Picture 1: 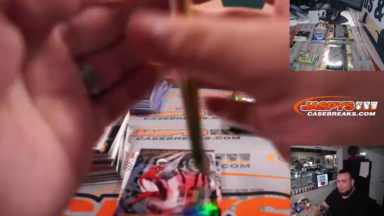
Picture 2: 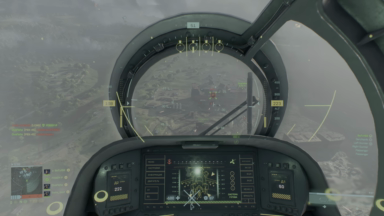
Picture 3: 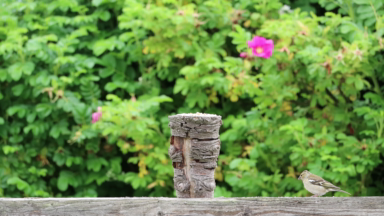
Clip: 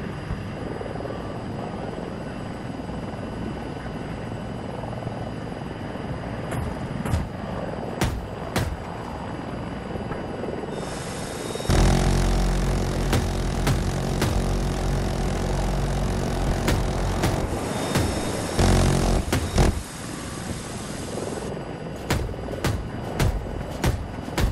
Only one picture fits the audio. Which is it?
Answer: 2